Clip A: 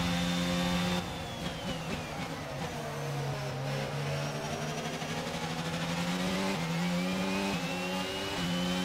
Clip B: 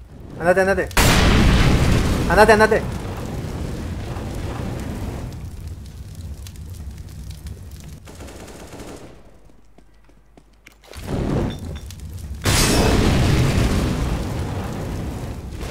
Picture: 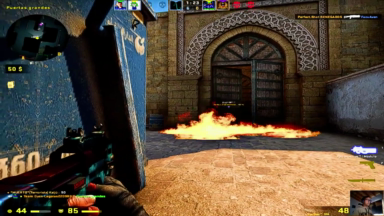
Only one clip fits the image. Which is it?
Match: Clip B